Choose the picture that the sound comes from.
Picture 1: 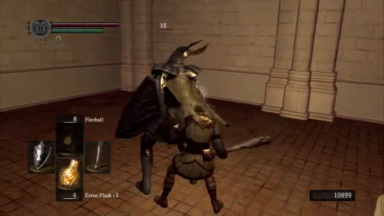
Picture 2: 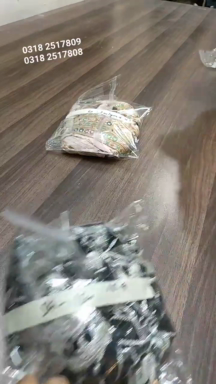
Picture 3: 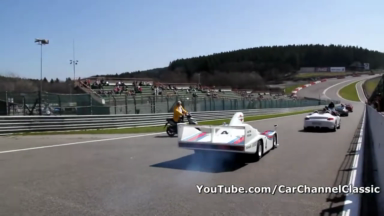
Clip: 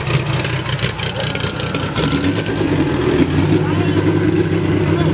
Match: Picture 3